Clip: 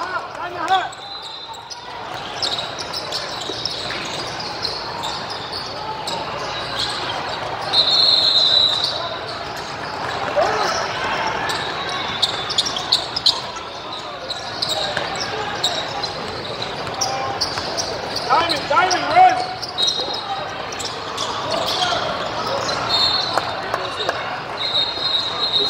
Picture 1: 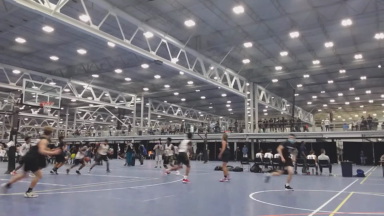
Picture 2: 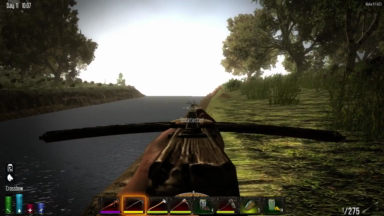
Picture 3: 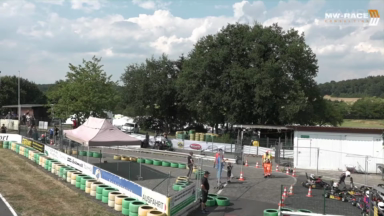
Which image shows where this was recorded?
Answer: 1